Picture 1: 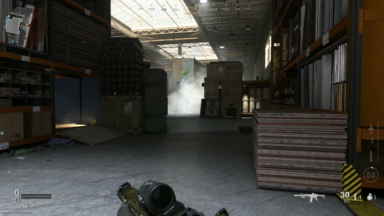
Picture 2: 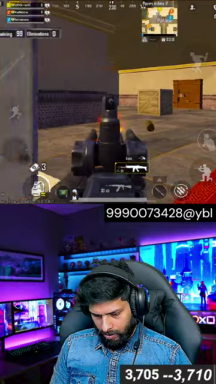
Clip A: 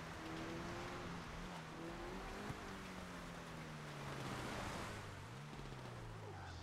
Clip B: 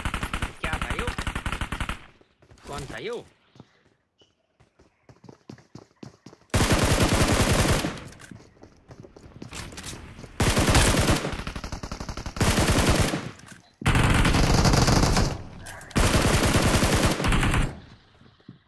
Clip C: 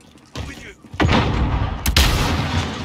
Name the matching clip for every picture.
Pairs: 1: C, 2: B